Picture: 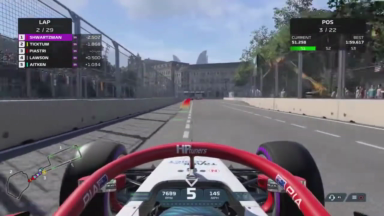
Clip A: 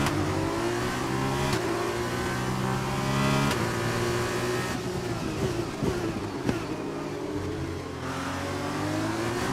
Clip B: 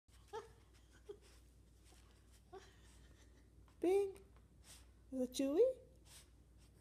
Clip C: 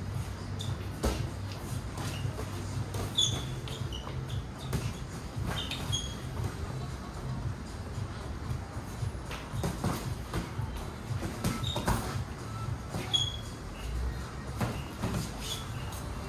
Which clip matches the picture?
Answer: A